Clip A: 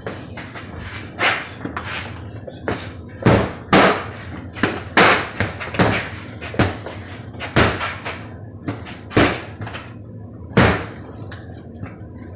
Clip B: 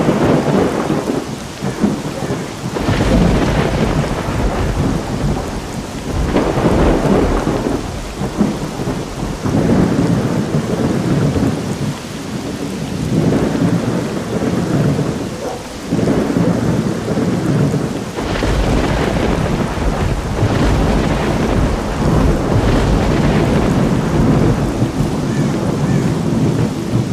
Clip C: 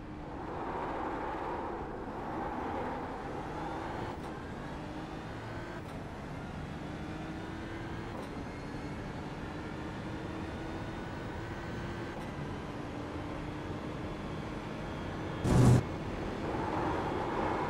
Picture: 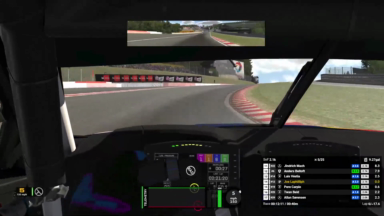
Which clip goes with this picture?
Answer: C